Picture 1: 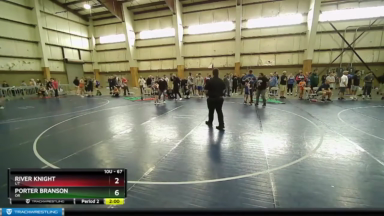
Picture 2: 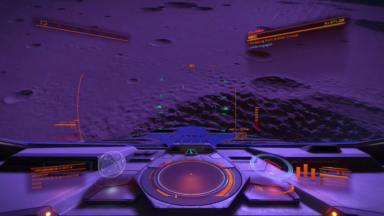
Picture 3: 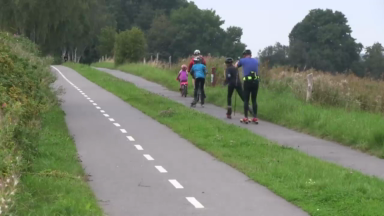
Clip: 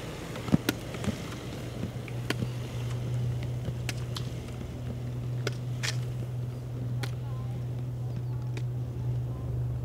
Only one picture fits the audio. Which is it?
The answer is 3